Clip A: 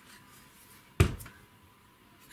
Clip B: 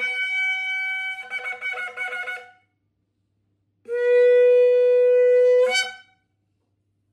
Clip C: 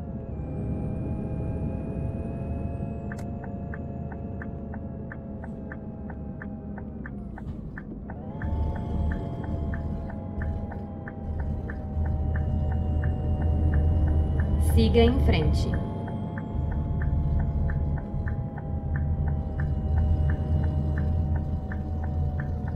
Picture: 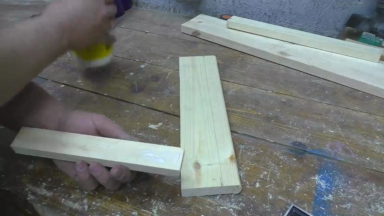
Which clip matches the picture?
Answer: A